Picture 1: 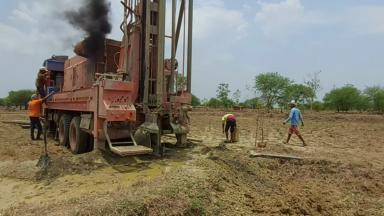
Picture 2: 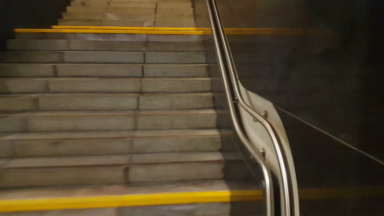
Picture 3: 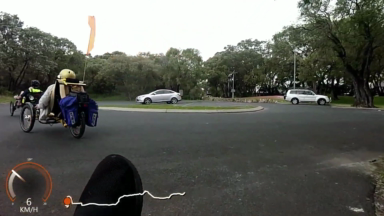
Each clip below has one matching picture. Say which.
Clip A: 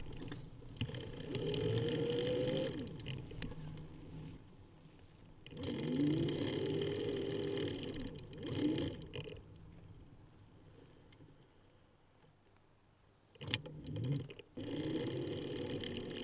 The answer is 3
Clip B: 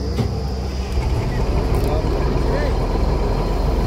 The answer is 1